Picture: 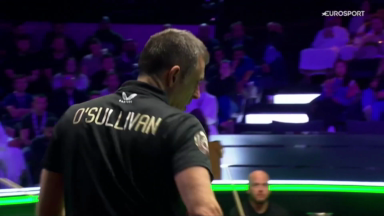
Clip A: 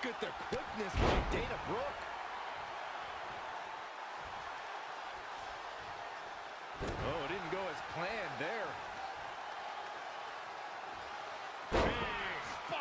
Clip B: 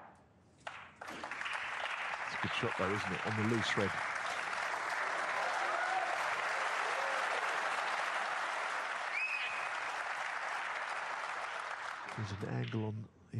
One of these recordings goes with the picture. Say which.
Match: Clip B